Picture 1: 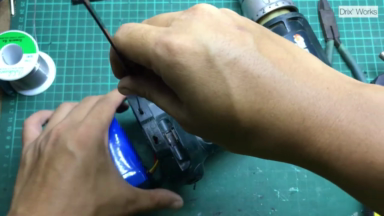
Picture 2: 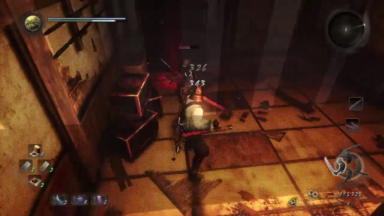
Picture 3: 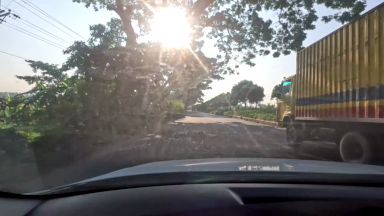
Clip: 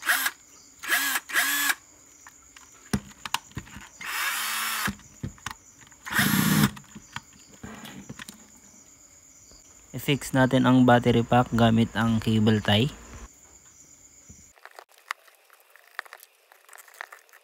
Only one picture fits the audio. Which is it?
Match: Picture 1